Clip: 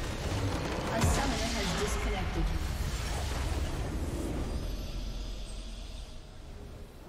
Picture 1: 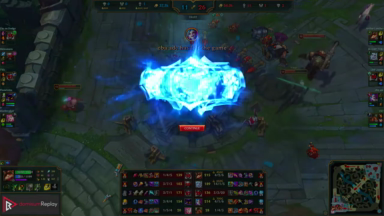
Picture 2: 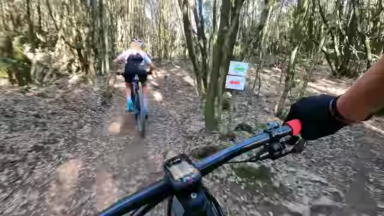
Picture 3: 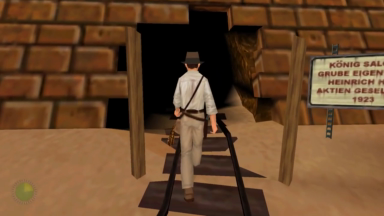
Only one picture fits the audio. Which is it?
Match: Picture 1